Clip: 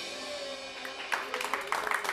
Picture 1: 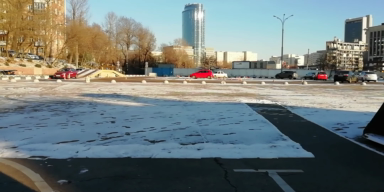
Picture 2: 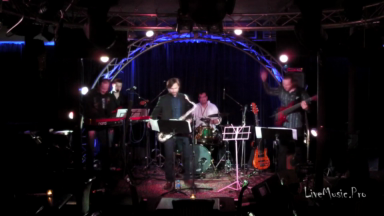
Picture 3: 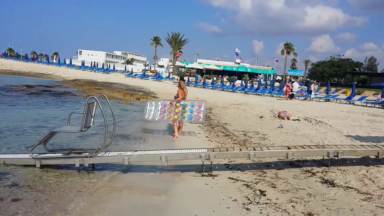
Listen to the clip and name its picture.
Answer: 2